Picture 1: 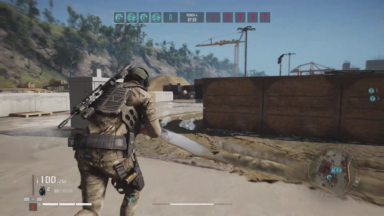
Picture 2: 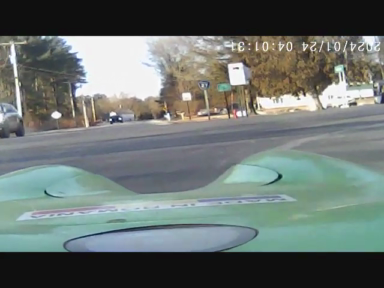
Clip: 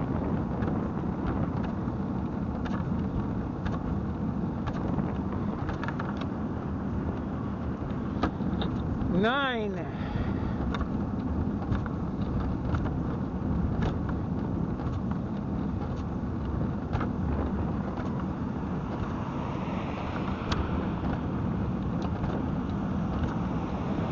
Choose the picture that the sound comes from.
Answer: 2